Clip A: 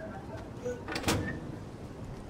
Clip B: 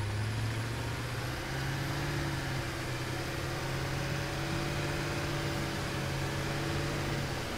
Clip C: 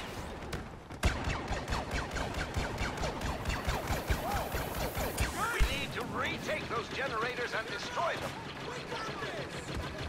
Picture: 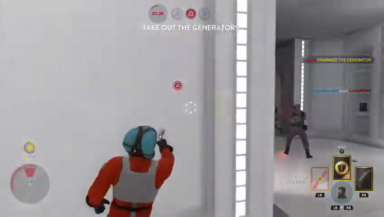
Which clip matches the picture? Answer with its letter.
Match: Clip C